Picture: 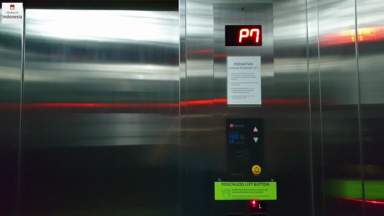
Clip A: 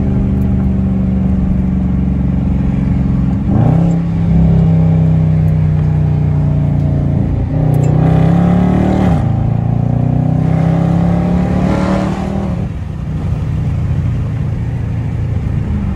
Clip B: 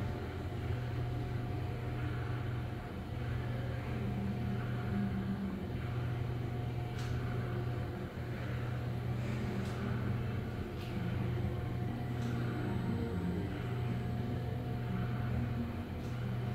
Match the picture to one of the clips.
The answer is B